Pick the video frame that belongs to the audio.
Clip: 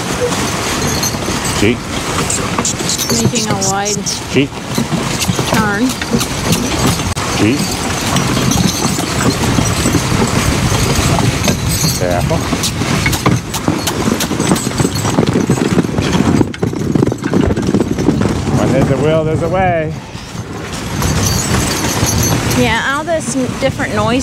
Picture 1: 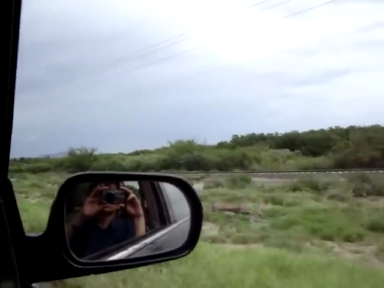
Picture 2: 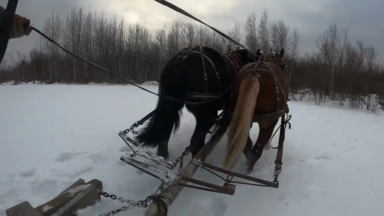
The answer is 2